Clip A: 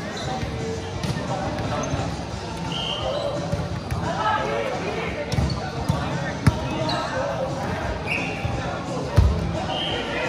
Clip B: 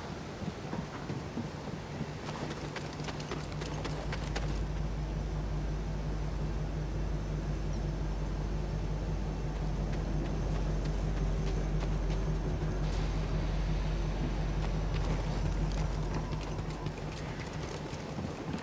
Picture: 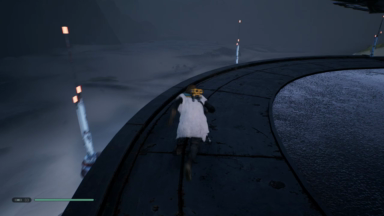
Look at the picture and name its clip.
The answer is B